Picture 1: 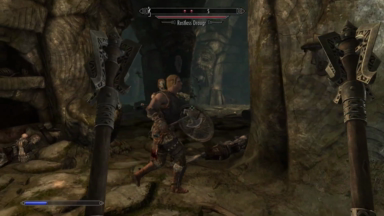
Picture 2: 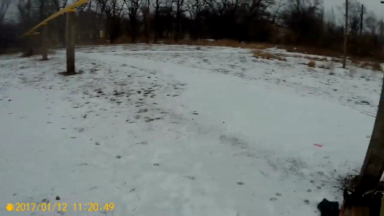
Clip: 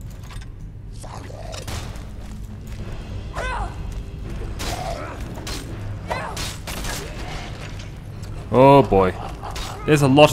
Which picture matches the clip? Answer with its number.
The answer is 1